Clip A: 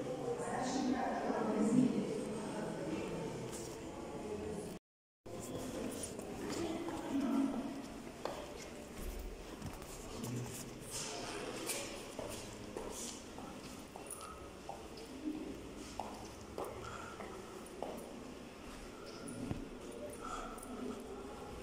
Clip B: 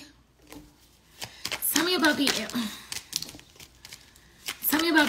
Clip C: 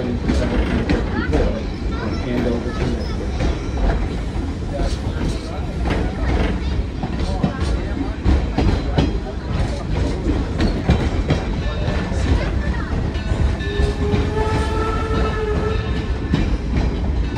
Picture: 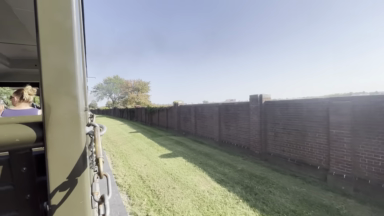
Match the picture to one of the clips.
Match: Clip C